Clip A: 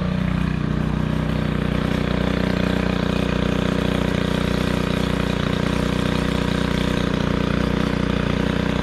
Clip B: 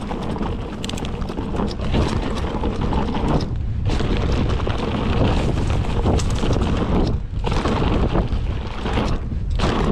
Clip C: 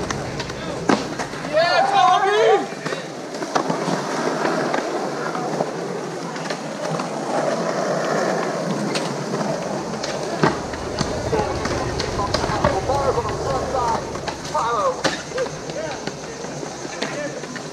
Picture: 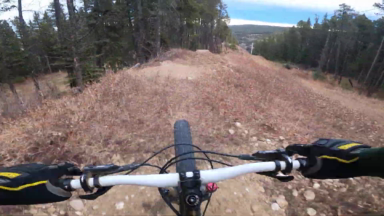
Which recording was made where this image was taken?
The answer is B